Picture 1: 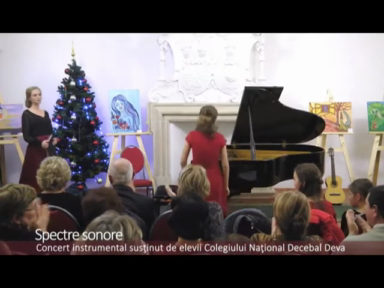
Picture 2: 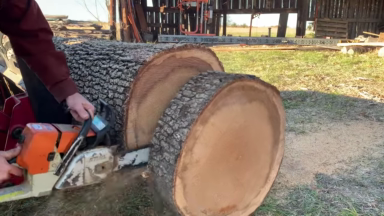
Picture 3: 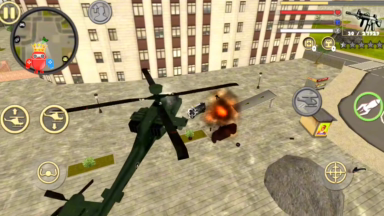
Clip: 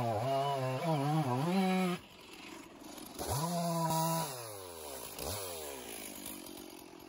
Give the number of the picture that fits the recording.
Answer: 2